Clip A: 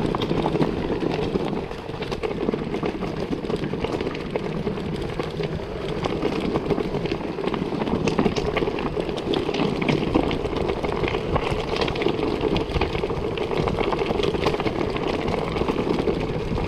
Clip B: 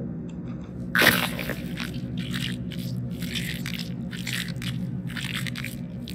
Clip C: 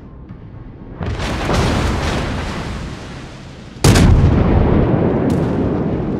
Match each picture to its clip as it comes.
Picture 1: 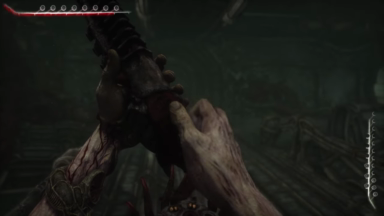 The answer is B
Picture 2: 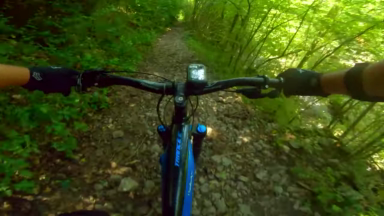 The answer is A